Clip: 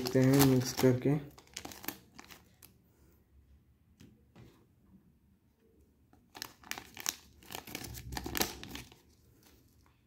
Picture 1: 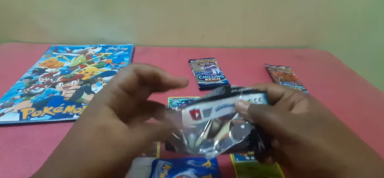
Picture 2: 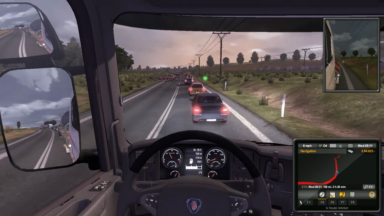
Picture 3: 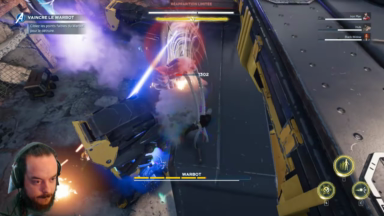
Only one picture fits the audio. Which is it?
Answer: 1